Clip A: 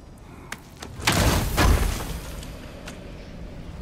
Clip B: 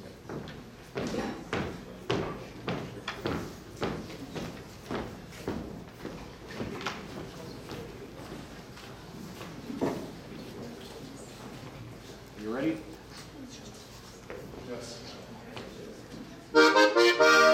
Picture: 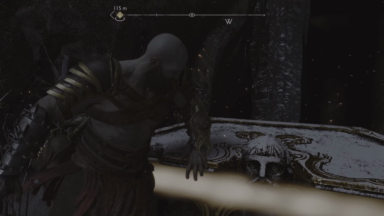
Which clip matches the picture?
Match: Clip A